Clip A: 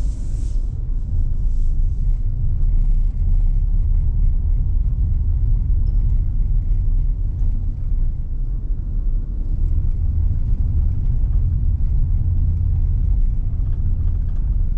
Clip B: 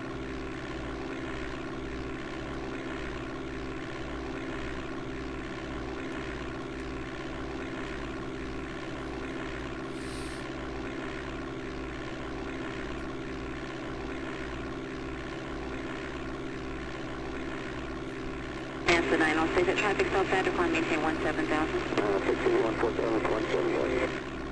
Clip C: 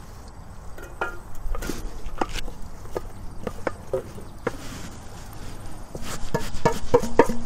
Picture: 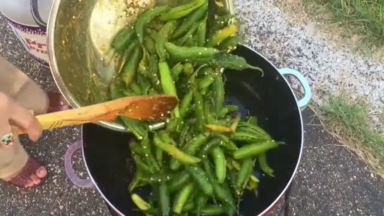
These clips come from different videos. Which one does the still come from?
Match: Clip C